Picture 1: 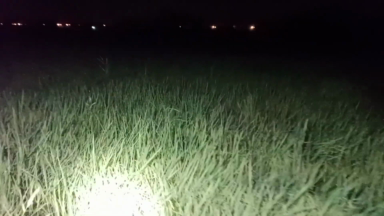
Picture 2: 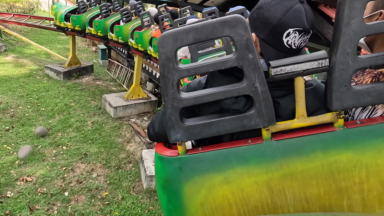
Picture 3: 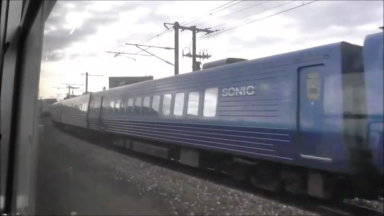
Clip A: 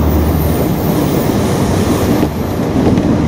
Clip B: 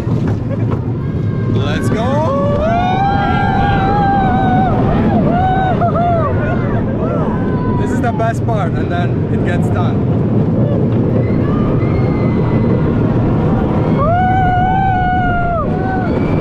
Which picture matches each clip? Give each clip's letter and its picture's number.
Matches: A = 3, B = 2